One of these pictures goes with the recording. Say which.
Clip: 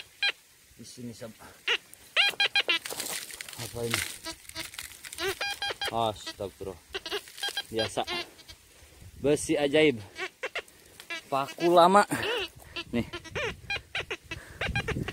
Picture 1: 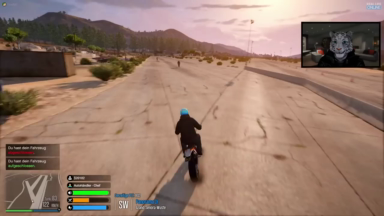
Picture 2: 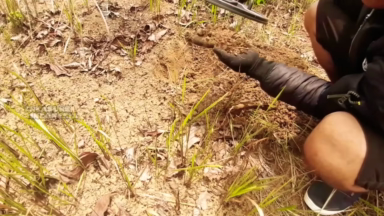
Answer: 2